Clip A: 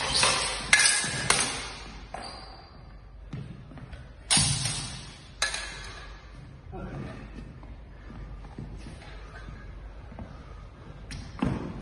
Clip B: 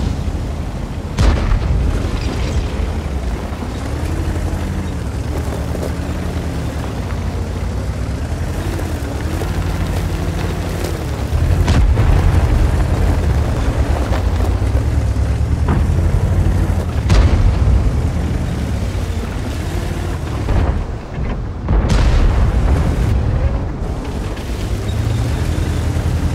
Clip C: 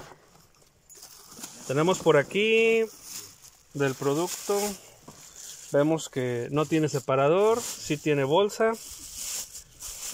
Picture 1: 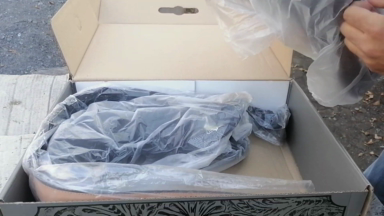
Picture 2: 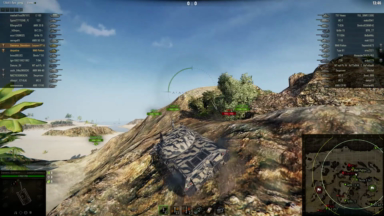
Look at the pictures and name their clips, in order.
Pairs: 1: C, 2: B